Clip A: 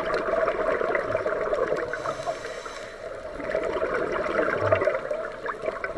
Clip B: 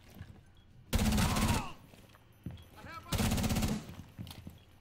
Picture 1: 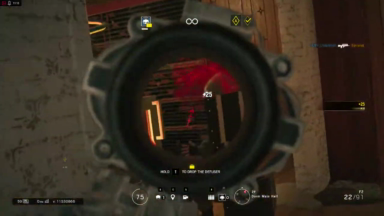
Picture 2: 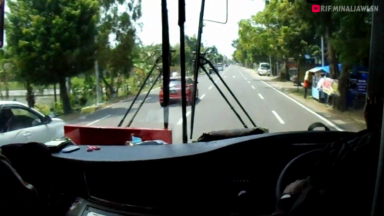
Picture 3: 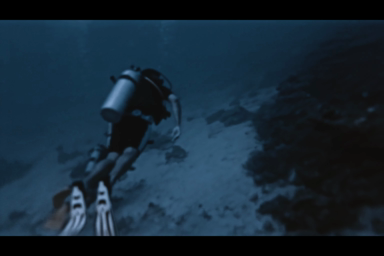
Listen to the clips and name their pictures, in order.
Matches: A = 3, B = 1